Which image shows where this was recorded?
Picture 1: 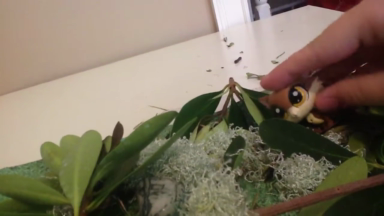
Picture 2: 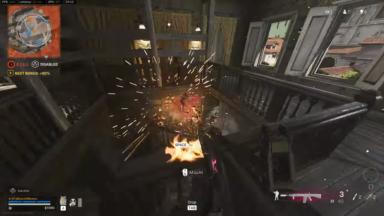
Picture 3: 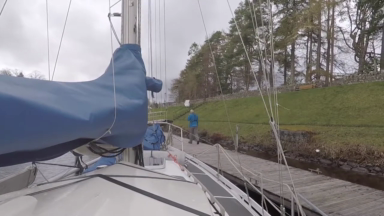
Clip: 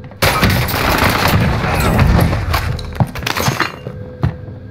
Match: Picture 2